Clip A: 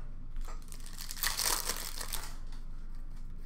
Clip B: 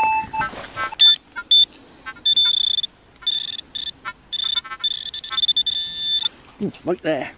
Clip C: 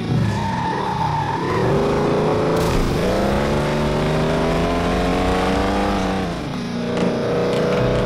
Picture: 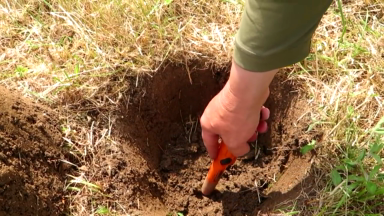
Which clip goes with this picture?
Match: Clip B